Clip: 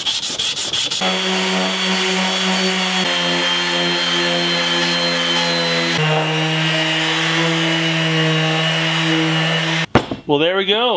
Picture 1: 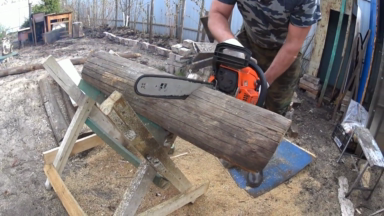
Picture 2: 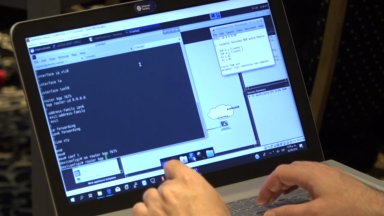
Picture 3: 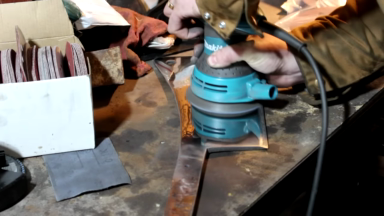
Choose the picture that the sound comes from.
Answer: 3